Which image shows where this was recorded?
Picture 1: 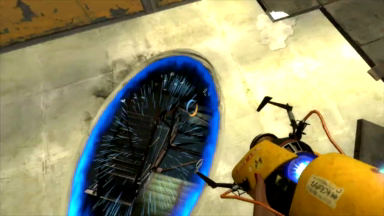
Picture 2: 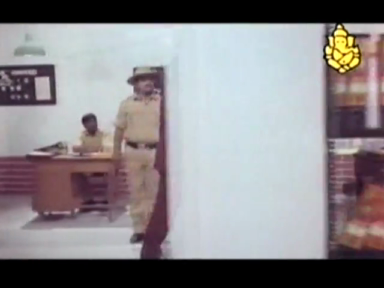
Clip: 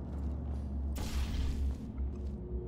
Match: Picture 1